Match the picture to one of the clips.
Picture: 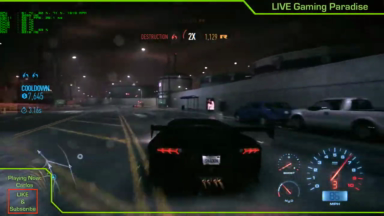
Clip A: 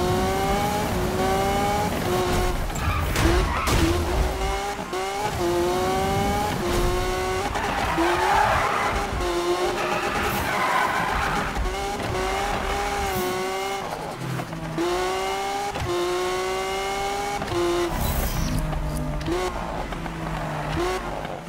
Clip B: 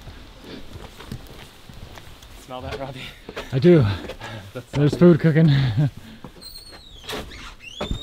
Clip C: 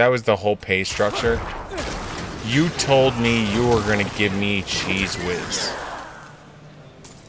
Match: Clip A